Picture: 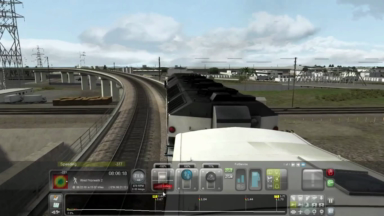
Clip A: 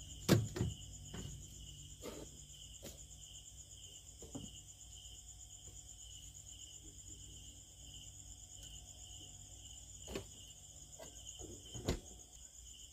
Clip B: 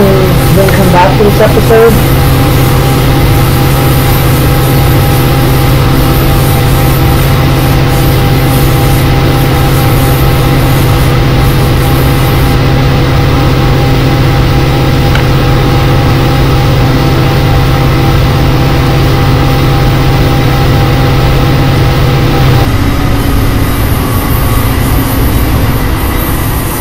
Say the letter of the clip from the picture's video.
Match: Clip B